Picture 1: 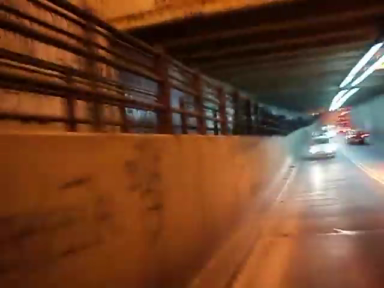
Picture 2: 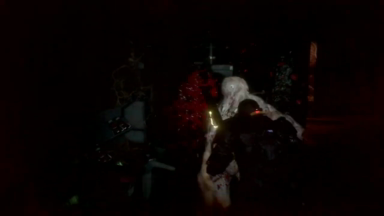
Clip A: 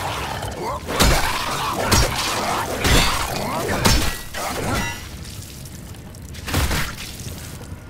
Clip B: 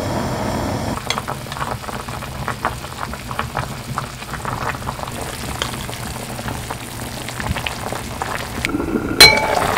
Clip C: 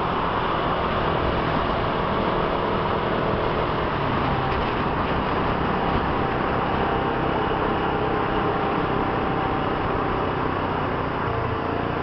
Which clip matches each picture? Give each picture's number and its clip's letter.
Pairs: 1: C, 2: A